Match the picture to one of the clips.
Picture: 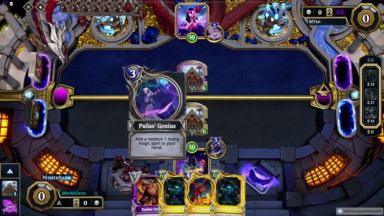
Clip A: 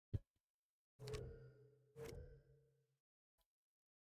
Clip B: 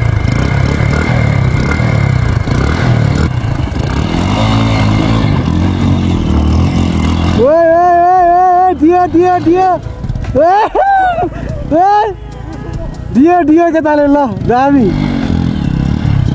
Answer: A